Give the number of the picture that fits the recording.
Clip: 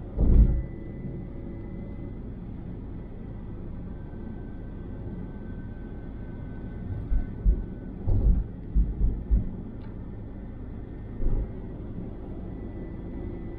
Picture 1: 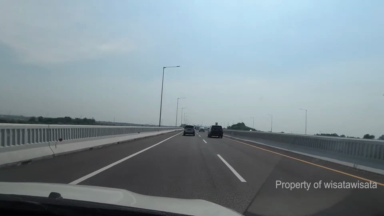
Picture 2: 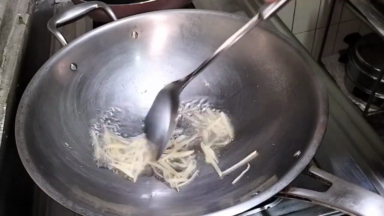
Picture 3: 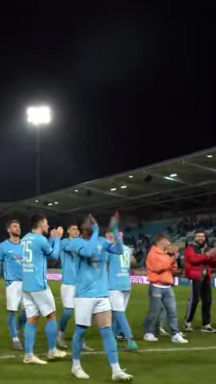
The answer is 1